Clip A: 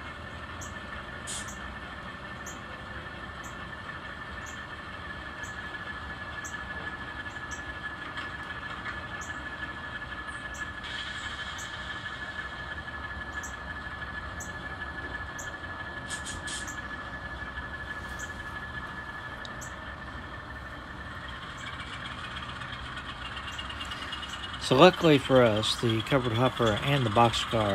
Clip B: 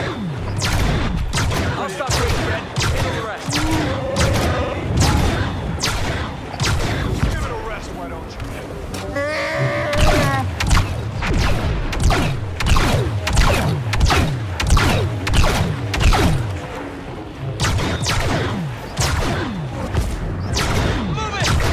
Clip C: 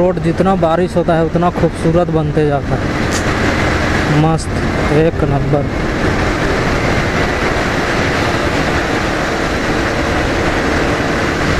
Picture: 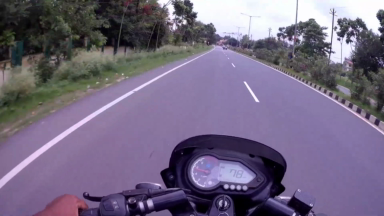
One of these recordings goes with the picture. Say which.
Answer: C